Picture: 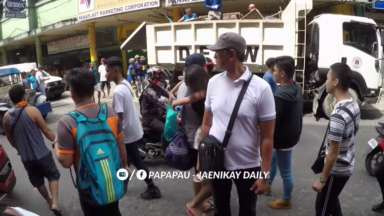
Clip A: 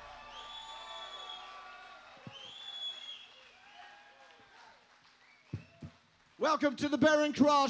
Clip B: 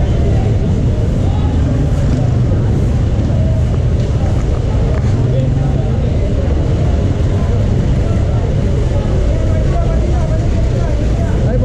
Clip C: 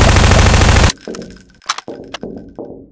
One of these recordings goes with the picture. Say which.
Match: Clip B